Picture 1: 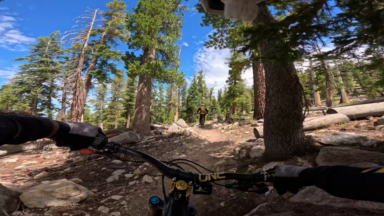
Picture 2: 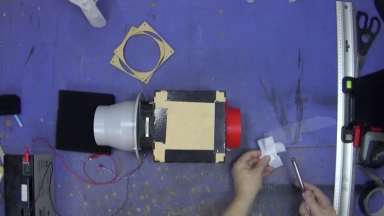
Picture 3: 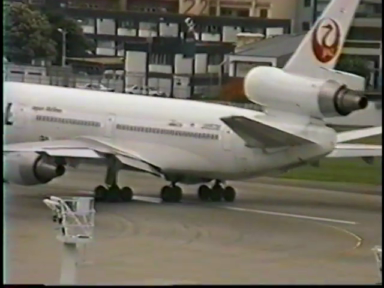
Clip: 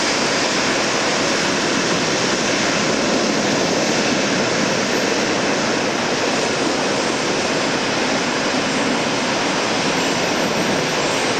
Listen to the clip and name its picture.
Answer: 3